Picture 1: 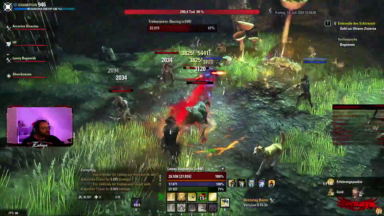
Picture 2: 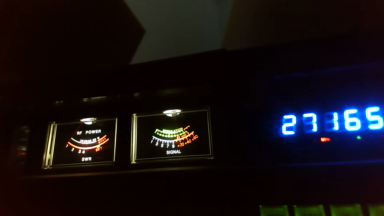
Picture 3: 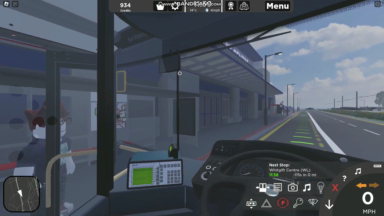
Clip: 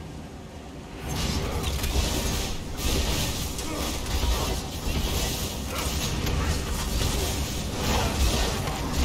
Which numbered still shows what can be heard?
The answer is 1